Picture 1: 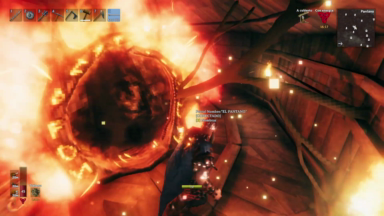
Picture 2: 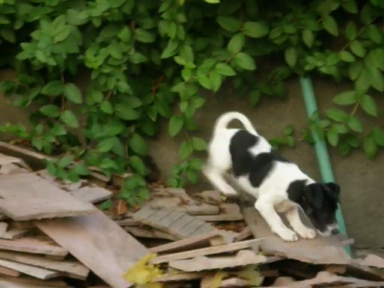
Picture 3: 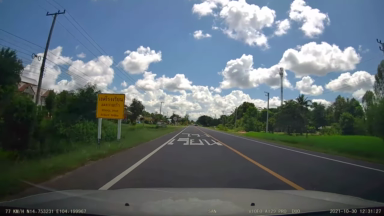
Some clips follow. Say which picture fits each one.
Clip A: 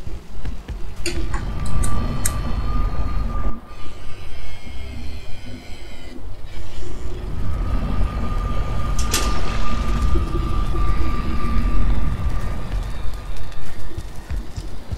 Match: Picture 1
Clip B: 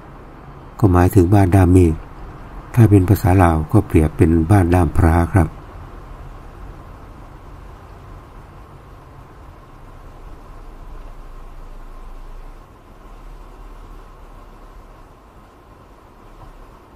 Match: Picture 3